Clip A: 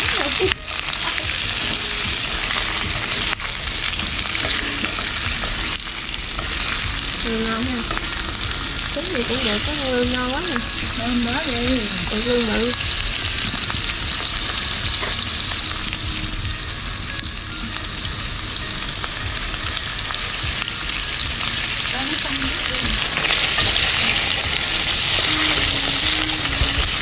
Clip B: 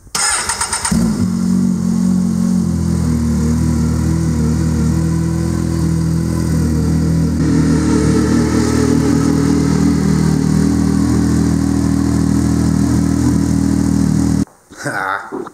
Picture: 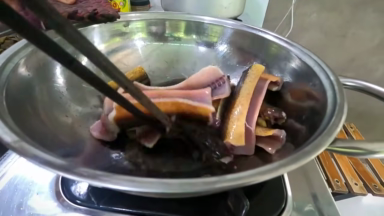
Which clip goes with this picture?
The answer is A